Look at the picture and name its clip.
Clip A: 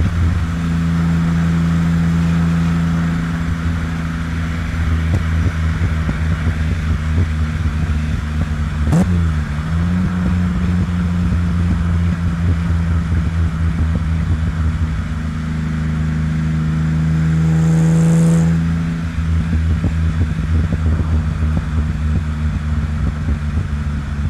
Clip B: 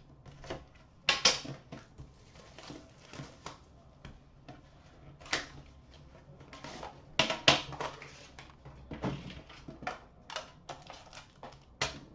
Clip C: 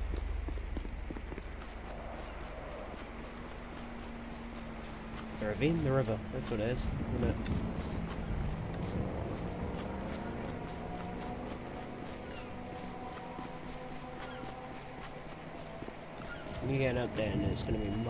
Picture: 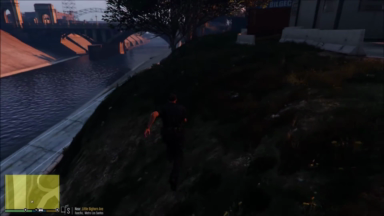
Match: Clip C